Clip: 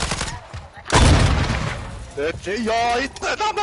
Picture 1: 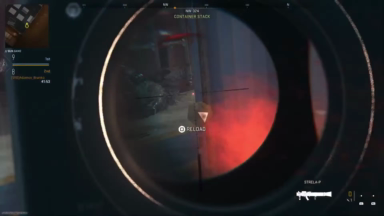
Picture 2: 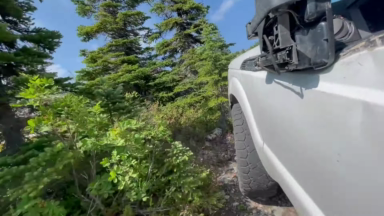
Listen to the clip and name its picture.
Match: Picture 1